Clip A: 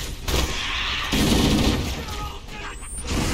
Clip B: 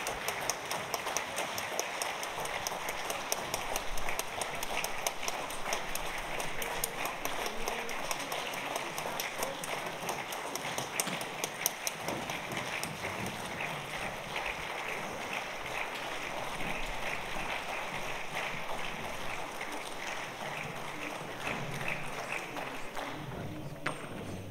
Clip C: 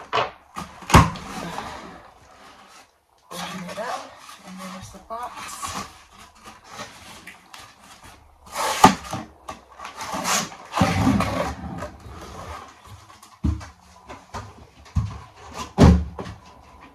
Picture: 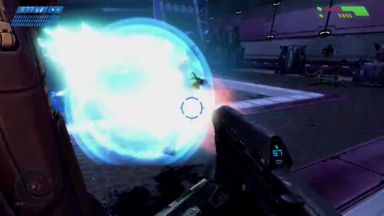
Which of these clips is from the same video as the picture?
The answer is A